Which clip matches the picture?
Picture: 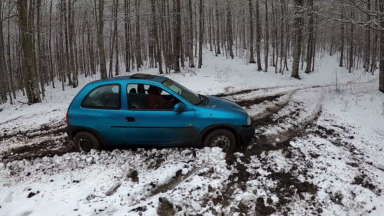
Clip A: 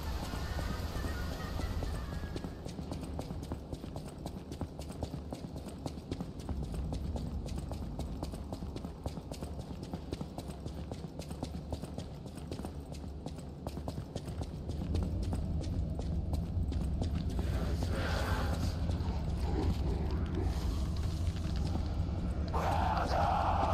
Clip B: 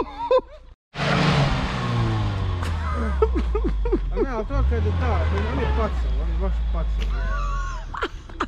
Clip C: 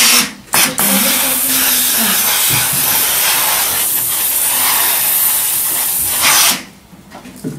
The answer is B